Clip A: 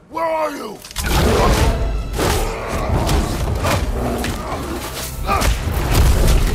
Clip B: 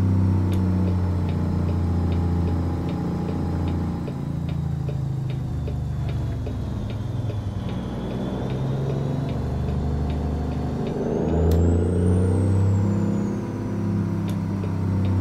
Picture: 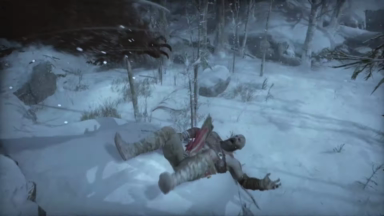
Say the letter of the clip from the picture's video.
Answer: A